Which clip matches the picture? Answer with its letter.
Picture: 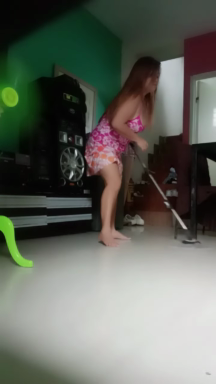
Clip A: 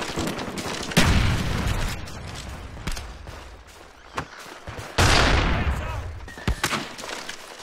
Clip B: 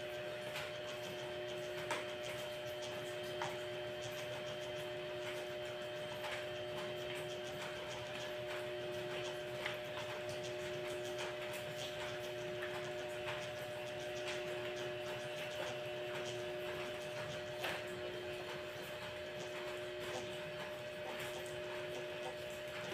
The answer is B